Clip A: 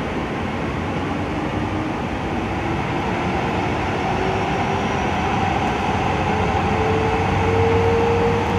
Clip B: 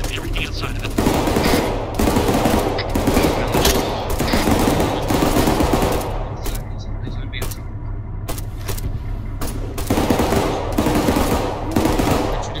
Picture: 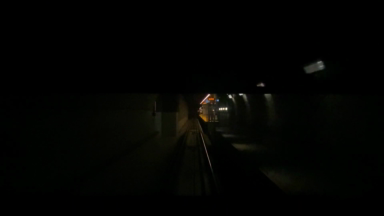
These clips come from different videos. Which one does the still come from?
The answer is A